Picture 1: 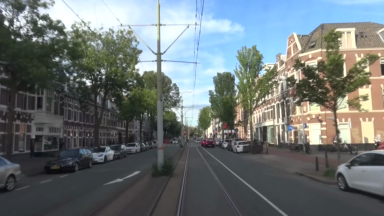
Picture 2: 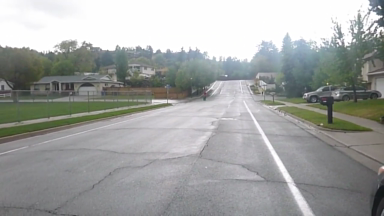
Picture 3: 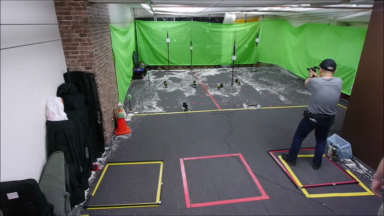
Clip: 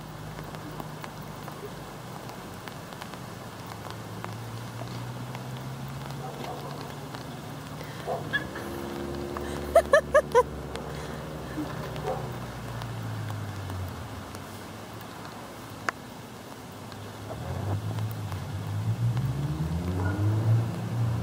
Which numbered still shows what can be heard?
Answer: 2